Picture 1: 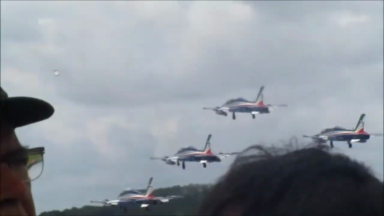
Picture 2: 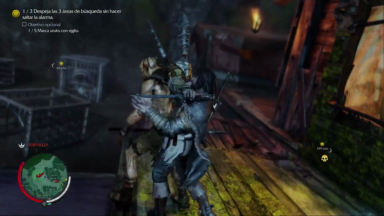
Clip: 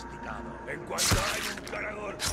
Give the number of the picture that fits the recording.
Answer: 2